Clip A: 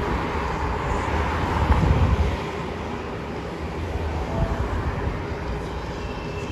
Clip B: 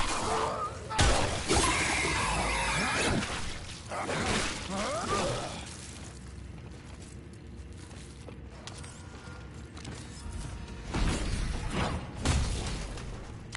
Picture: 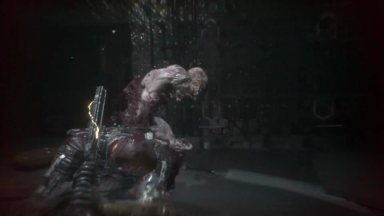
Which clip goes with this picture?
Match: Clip B